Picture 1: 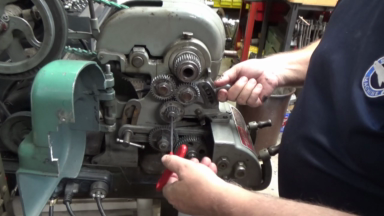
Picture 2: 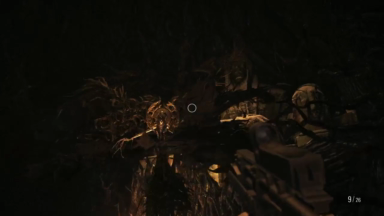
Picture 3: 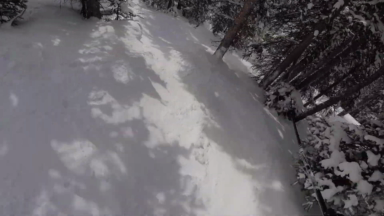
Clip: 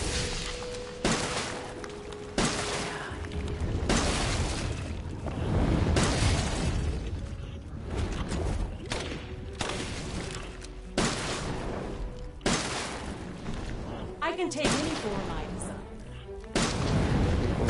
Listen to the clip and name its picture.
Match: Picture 2